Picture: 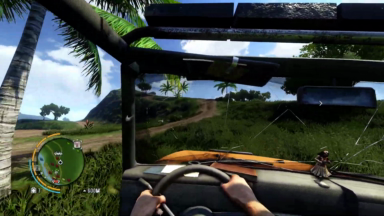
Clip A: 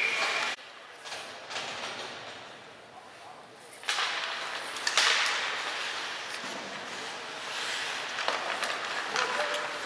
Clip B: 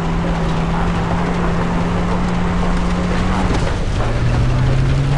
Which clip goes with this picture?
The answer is B